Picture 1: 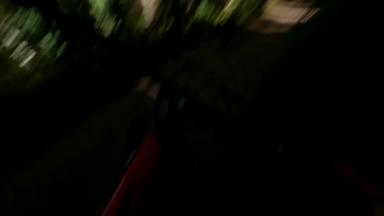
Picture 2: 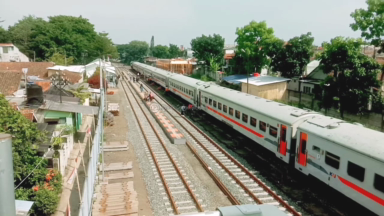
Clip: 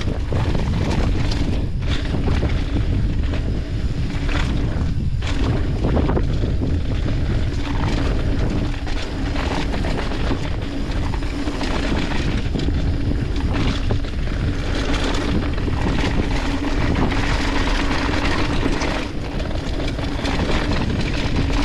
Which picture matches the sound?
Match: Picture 1